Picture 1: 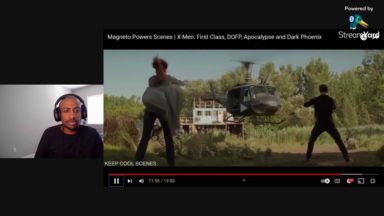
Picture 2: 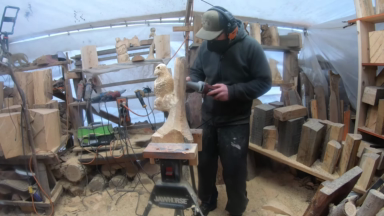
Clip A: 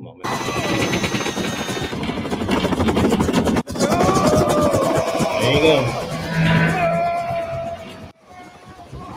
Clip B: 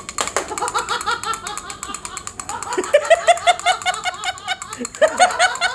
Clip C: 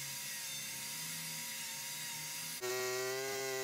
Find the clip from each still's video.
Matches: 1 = A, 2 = C